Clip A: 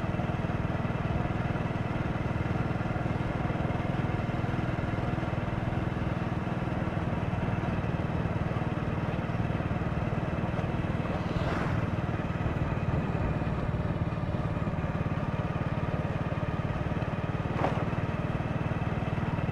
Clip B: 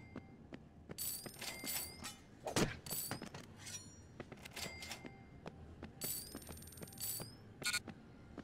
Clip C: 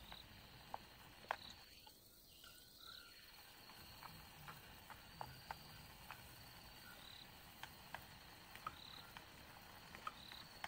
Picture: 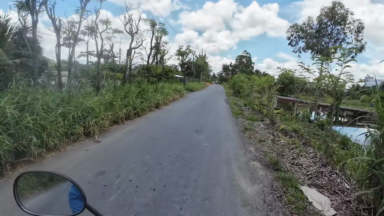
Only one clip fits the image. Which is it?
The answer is A